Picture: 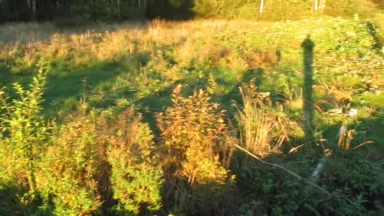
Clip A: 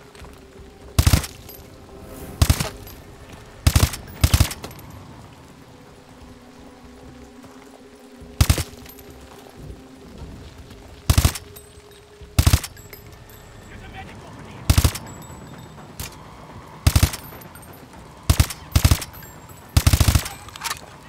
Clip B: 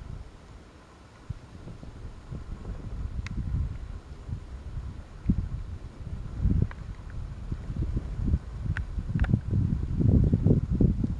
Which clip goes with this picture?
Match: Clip B